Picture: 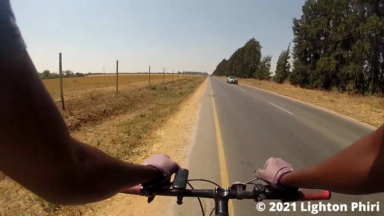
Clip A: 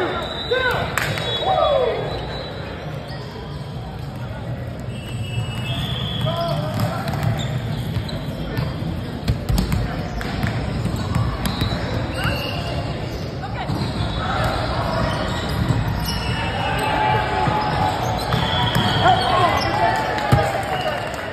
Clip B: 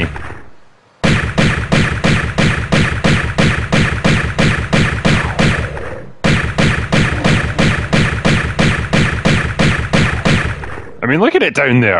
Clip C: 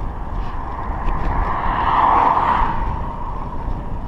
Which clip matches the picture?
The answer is C